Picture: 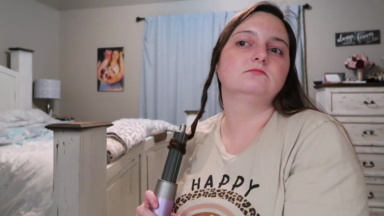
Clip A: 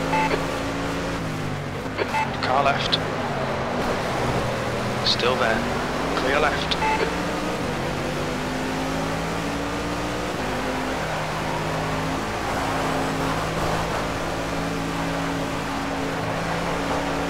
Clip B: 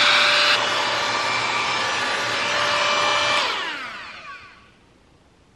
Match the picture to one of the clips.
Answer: B